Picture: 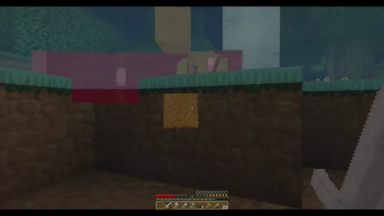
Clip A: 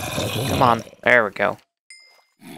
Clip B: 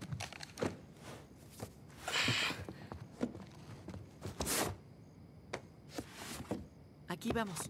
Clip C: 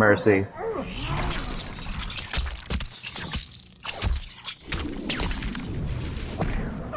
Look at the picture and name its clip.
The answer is A